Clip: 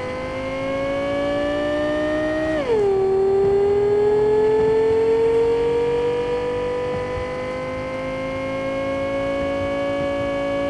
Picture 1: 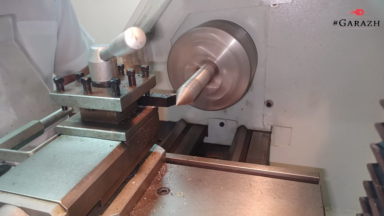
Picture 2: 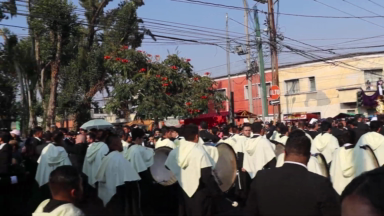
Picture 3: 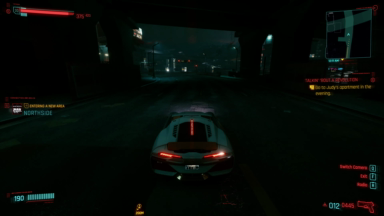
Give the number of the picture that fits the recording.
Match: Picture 3